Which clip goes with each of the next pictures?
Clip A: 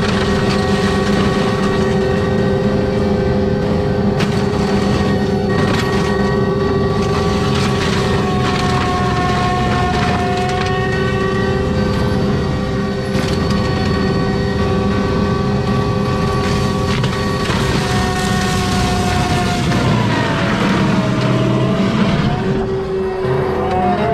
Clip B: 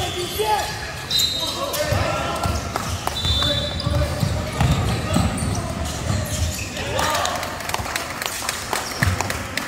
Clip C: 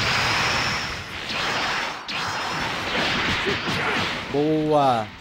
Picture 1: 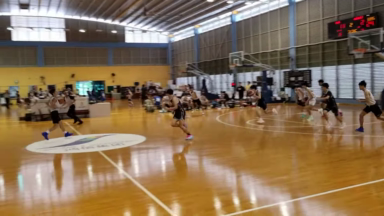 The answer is B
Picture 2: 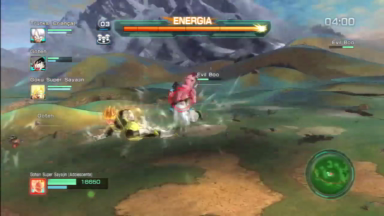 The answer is C